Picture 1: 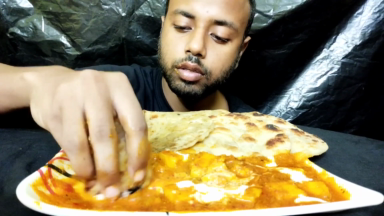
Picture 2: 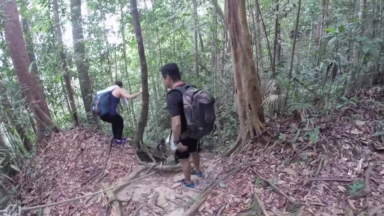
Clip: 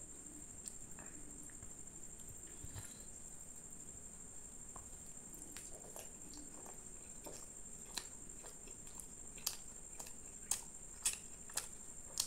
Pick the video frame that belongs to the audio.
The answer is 1